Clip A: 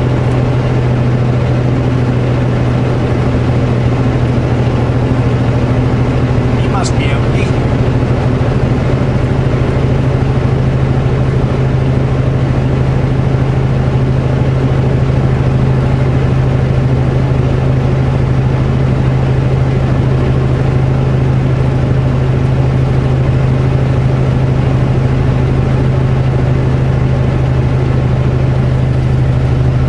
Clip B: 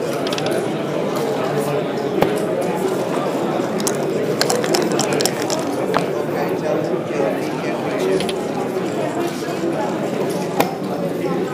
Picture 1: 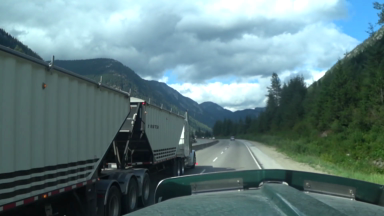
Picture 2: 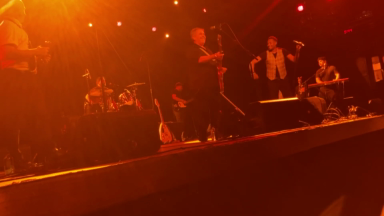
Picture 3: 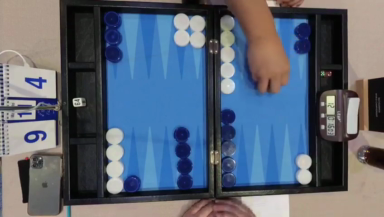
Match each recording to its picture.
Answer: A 1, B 3